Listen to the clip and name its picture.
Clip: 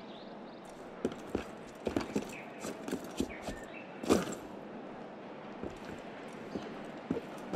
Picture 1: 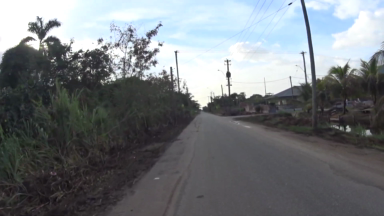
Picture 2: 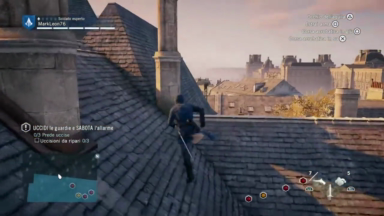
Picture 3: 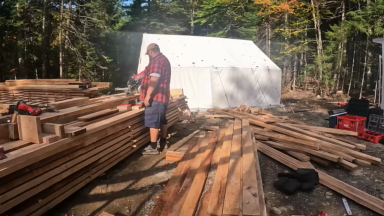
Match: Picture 2